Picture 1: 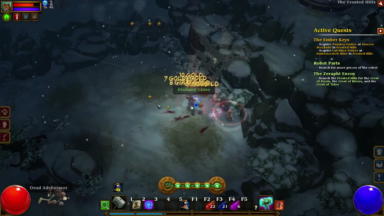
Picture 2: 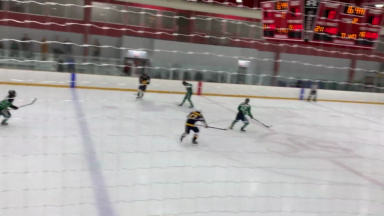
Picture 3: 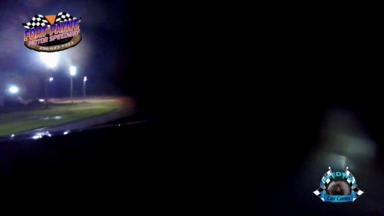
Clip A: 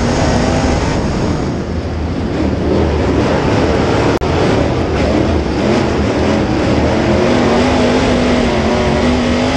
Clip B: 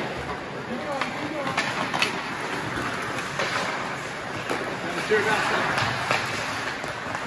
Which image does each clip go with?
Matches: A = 3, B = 2